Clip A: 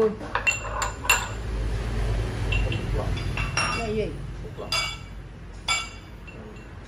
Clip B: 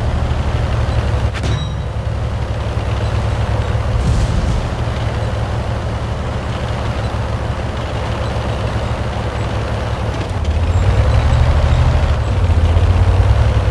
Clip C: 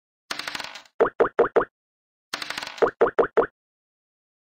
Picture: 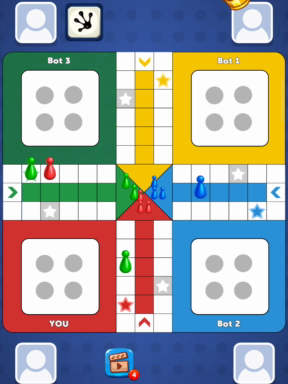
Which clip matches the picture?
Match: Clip C